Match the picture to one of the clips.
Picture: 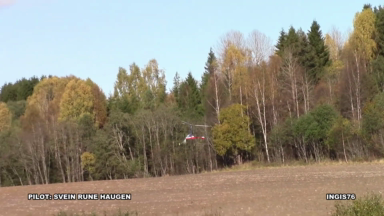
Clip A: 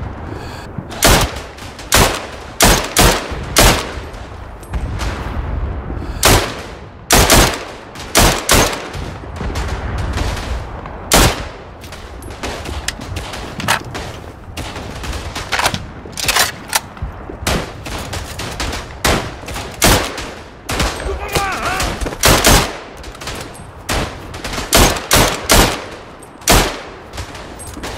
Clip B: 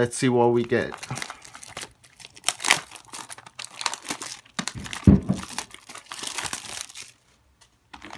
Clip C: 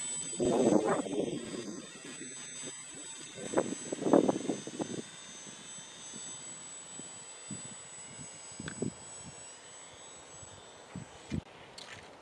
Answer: C